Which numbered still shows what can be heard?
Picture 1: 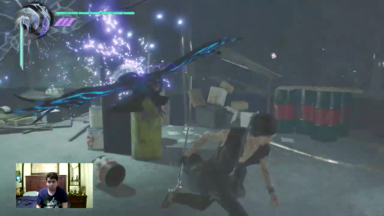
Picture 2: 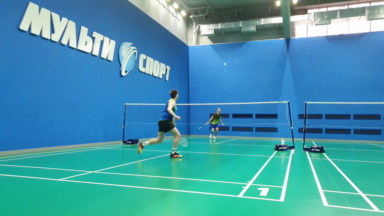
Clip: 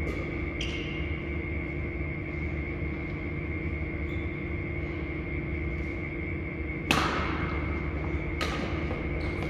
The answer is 2